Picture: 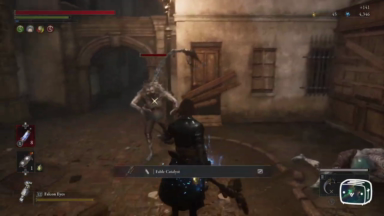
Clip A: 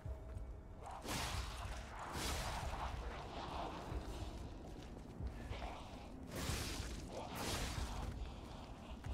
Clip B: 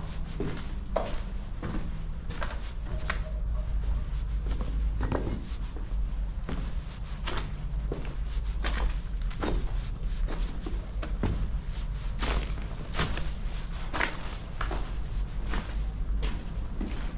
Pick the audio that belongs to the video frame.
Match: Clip A